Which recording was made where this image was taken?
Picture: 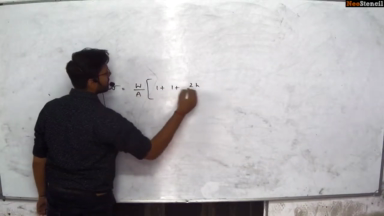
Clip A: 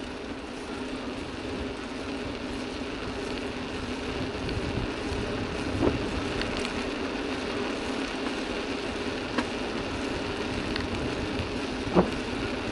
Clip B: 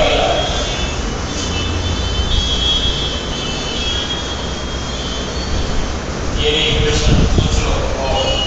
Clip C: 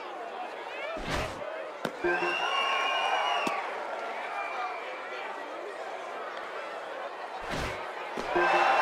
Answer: B